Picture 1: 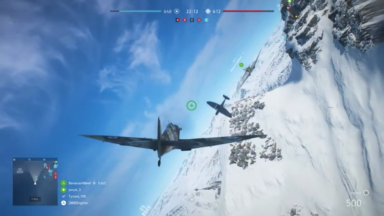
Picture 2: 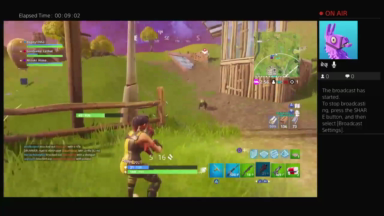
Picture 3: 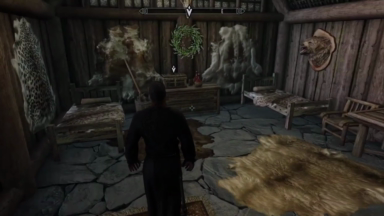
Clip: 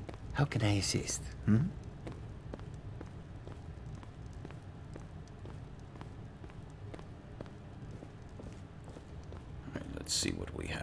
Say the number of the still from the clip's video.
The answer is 3